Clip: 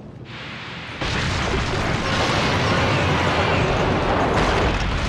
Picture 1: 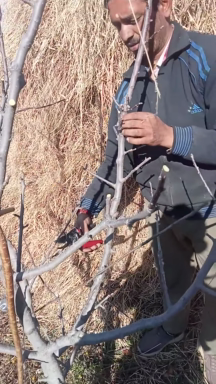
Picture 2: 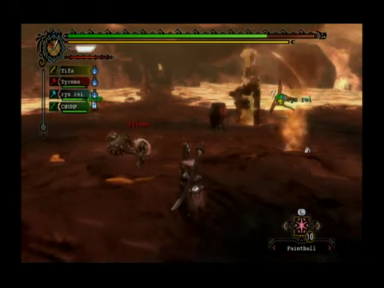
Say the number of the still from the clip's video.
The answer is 2